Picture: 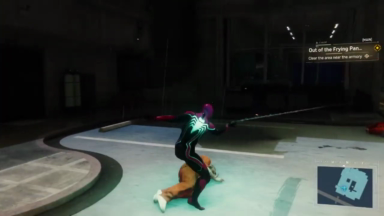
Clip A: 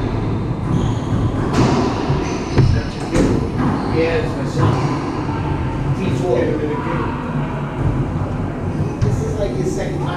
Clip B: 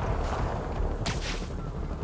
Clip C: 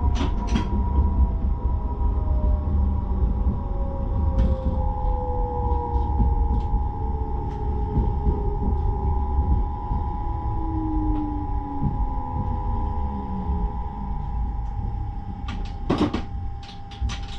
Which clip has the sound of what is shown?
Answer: B